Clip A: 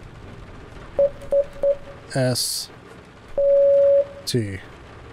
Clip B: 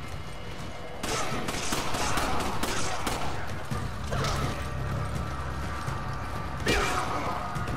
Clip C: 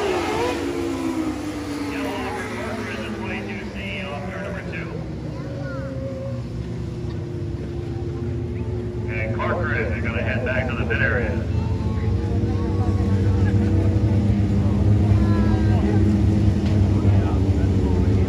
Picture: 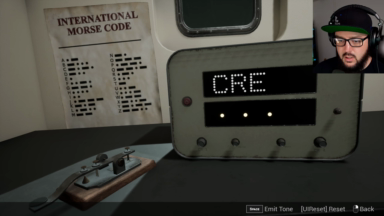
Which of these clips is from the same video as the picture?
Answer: A